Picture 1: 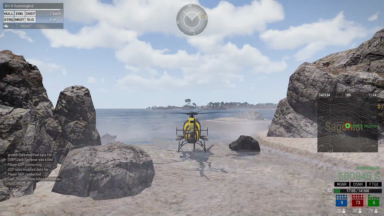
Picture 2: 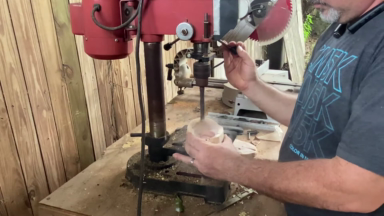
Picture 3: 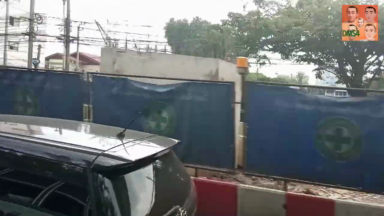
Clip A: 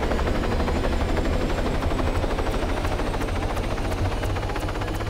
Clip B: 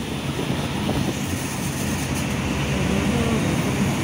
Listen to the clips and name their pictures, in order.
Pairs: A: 1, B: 3